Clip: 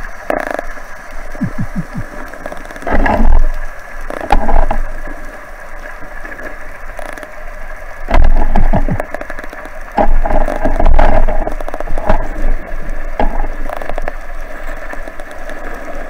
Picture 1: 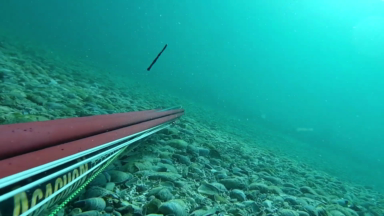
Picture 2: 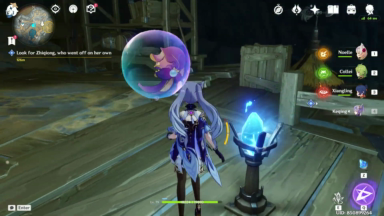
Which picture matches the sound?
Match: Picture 1